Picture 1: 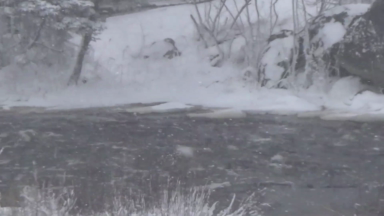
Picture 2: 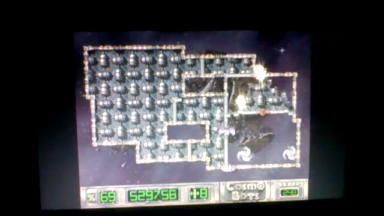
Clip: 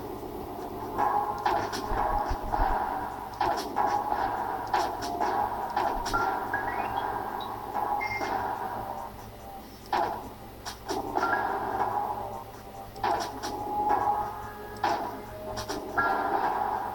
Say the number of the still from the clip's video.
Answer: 2